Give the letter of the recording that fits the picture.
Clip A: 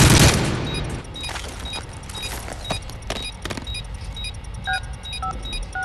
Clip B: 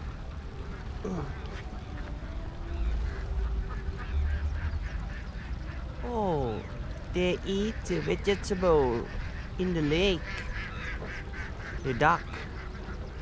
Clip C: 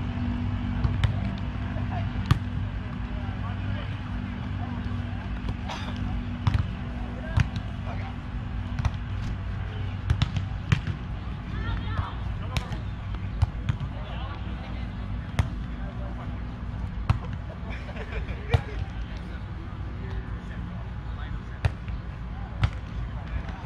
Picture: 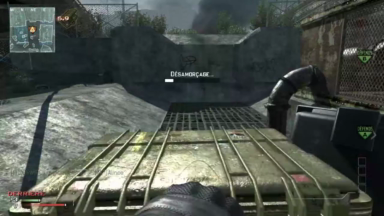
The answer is A